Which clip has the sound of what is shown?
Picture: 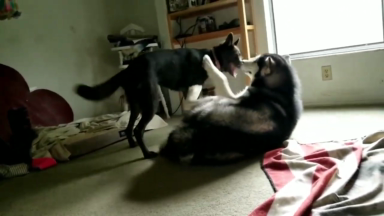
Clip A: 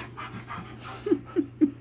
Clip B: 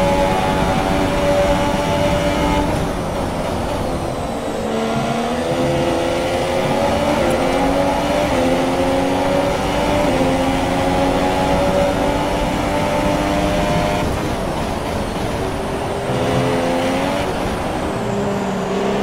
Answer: A